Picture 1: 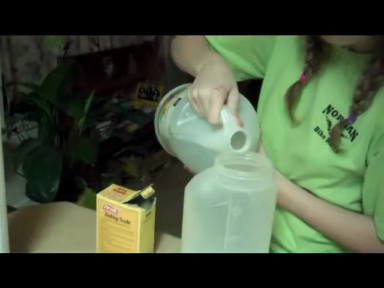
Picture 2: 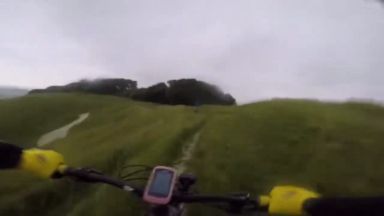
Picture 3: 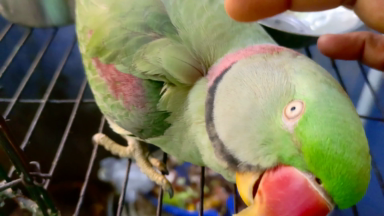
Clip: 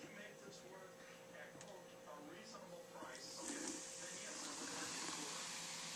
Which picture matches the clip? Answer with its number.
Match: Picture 1